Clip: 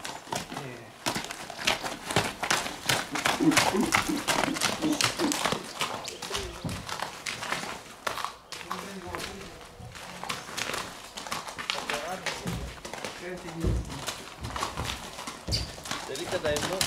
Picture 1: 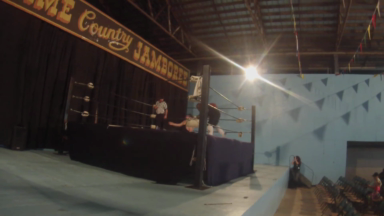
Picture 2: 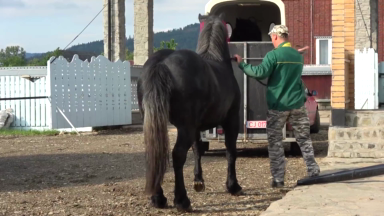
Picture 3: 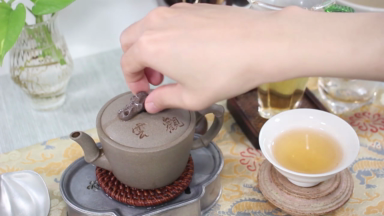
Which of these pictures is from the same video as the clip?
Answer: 2